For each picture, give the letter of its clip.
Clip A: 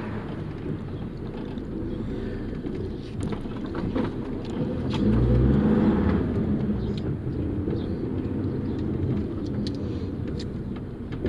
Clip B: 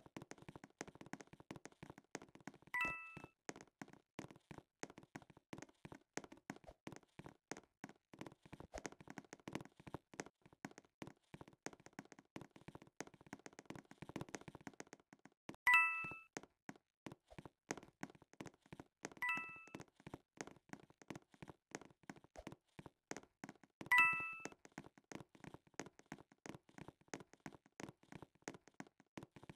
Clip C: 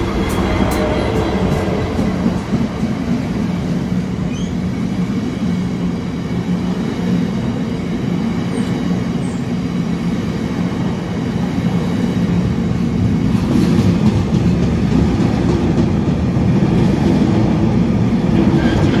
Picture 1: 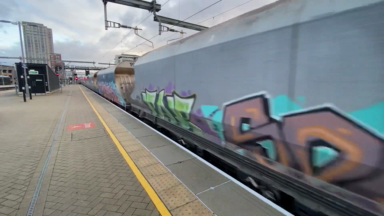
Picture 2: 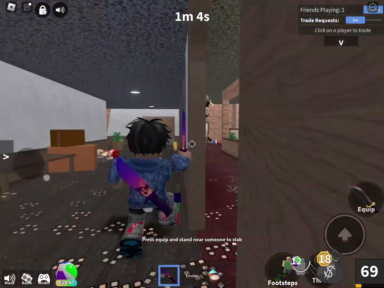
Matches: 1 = C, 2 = B